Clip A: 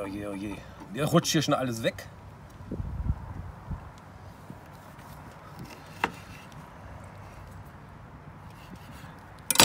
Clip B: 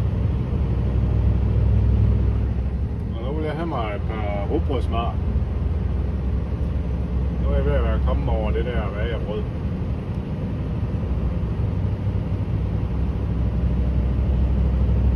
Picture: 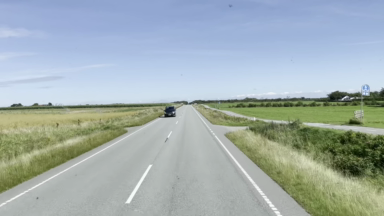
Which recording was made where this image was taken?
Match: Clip B